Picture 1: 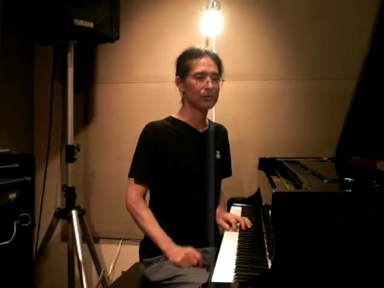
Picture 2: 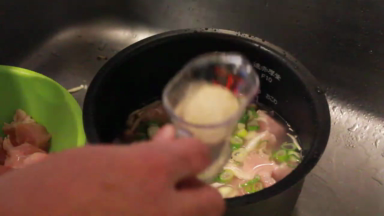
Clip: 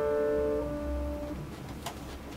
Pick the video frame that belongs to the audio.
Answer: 1